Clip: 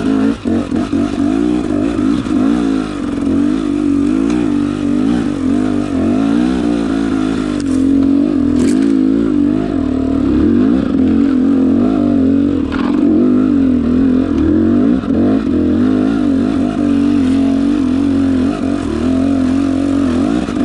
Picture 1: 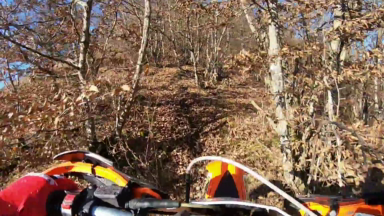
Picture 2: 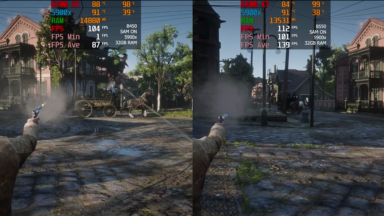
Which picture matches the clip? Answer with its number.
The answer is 1